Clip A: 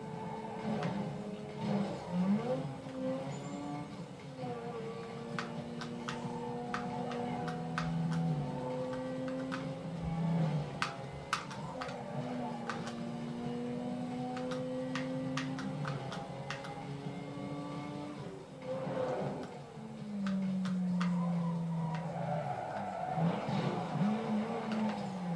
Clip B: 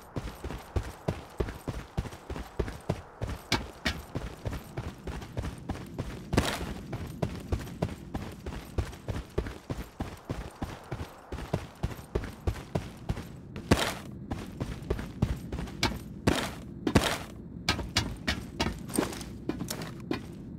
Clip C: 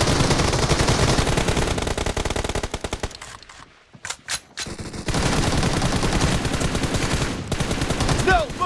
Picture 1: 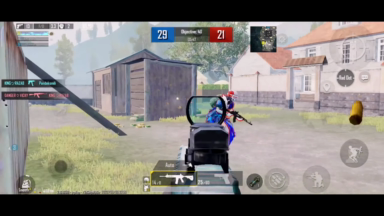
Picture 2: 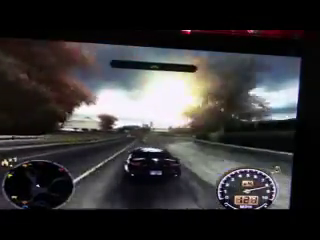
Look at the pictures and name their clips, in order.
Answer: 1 C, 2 A